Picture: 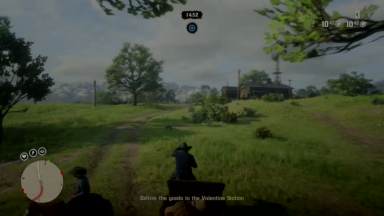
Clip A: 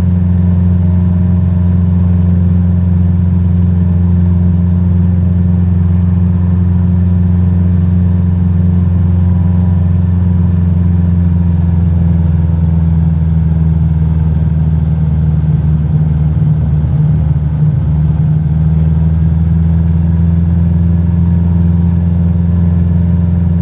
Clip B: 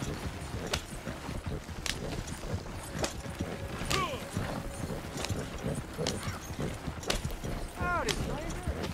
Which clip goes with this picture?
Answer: B